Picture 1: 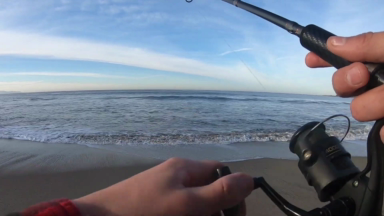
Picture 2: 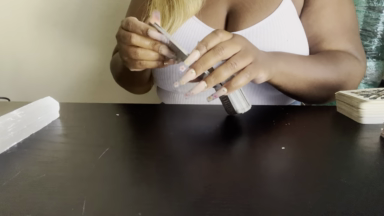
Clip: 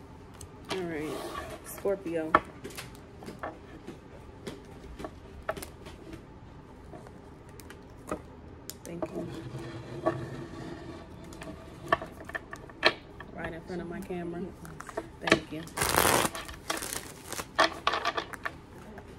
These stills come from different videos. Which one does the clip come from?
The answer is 2